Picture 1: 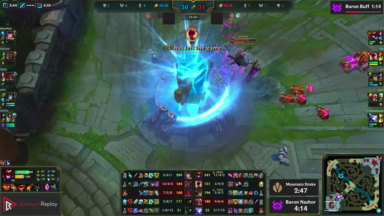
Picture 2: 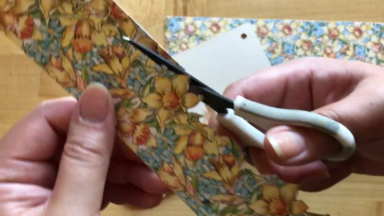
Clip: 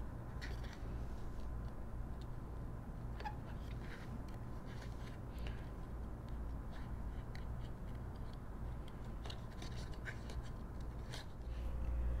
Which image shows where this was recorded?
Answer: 2